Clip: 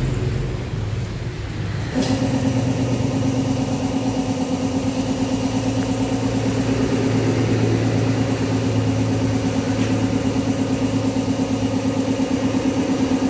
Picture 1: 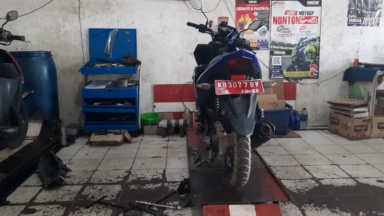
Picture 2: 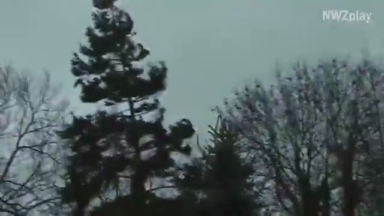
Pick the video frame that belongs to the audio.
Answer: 1